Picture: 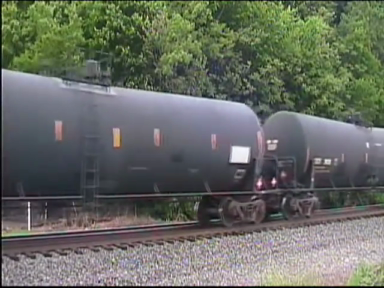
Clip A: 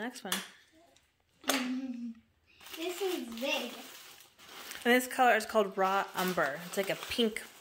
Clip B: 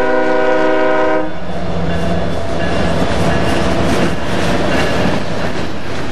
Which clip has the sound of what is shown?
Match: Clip B